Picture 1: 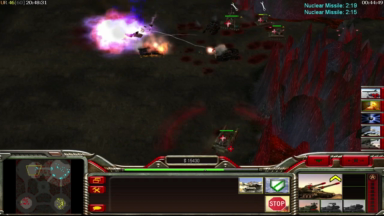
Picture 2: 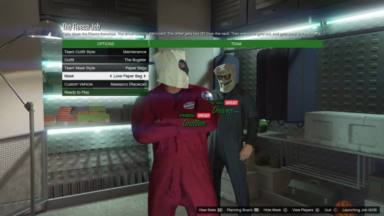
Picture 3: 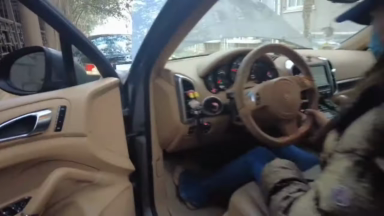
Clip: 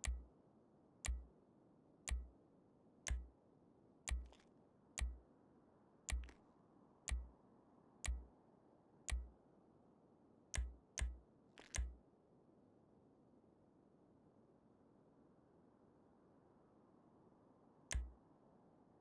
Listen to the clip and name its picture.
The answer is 2